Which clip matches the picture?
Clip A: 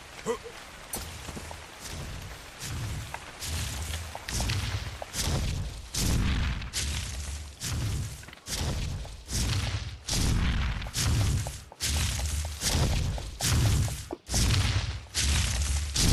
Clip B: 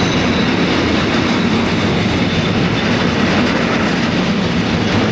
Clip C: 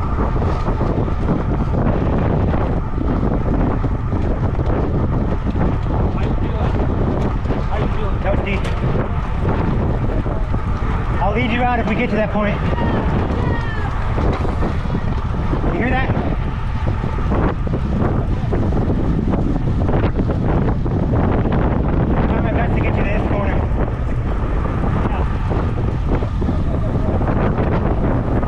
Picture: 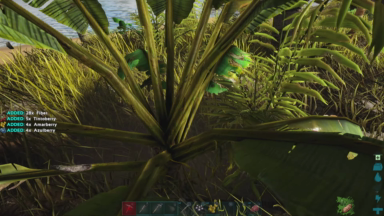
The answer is A